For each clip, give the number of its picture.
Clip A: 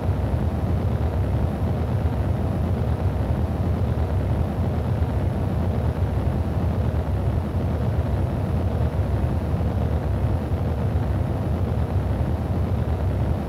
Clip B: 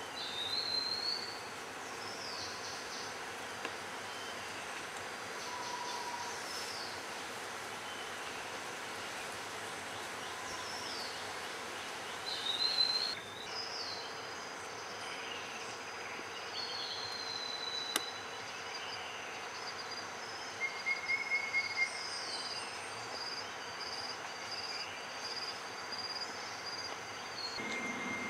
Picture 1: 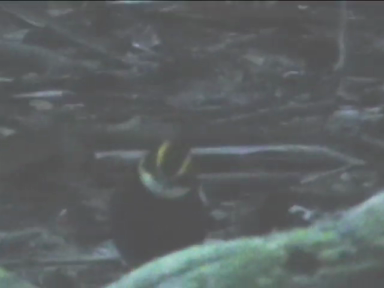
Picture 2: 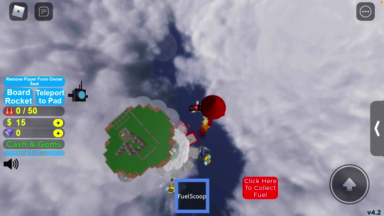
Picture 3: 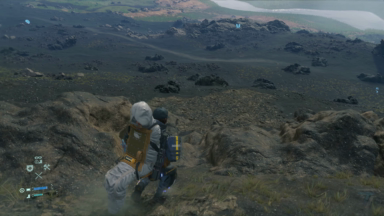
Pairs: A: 2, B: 1